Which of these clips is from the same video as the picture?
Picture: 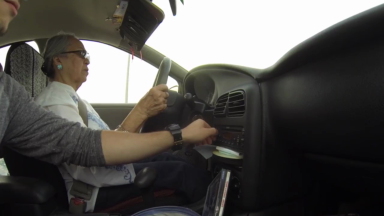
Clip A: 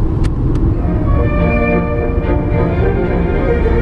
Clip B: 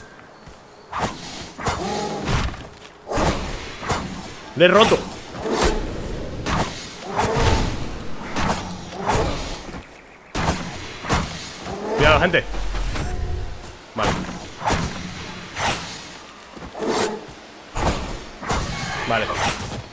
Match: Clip A